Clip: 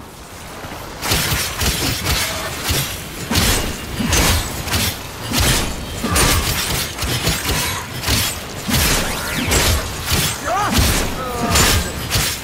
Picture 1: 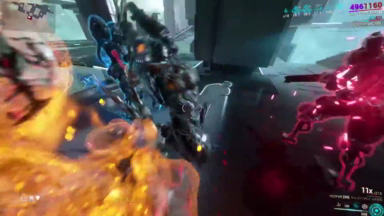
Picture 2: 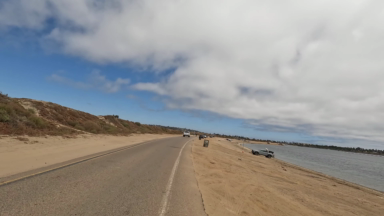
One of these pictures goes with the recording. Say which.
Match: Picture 1